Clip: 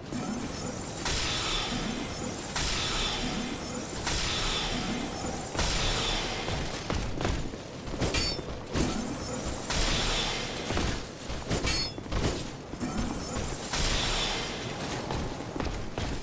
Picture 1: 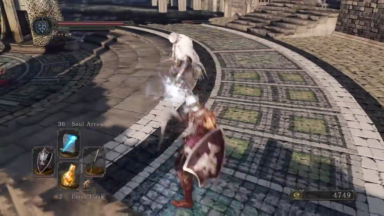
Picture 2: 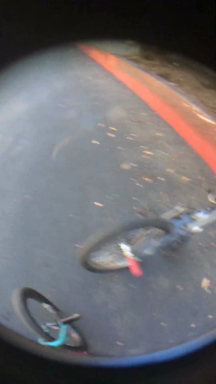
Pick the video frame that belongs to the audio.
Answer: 1